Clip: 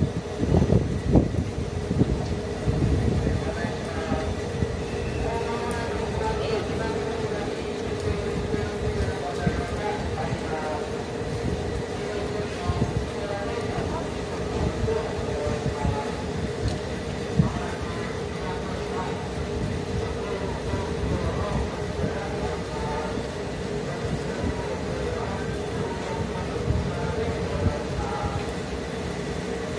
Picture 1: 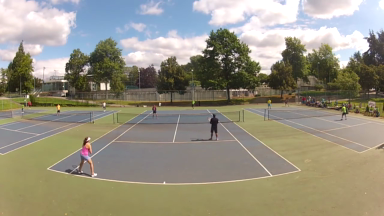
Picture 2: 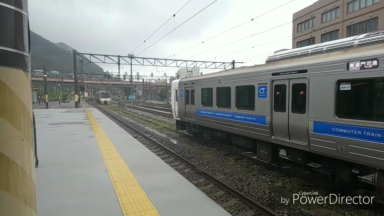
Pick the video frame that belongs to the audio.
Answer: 2